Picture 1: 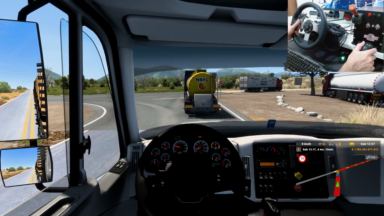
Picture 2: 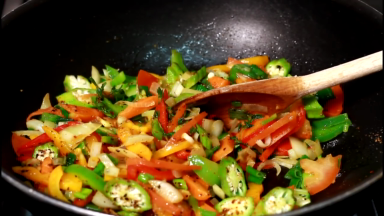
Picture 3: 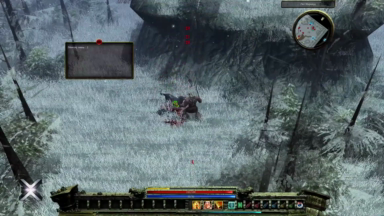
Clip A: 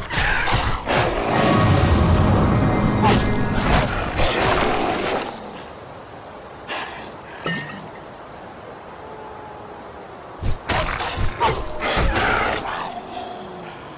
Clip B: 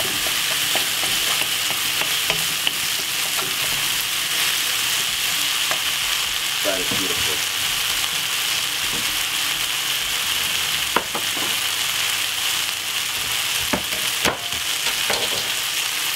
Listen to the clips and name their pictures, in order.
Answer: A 3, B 2